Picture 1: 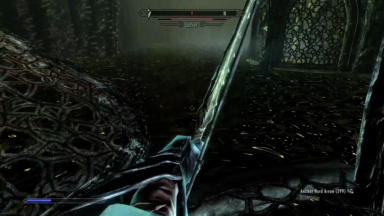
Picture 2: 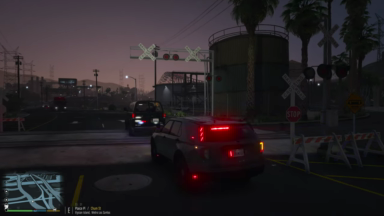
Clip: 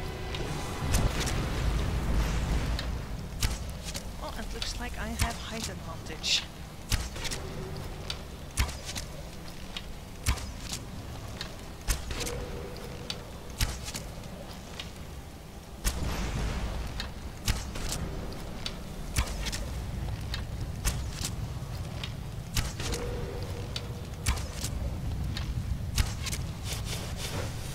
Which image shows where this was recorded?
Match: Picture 1